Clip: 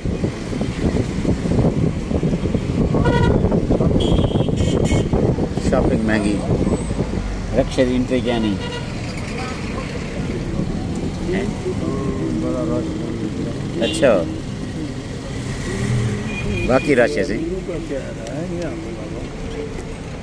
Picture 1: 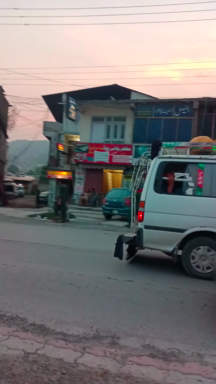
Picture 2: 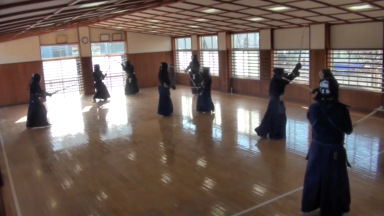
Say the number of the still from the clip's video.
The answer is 1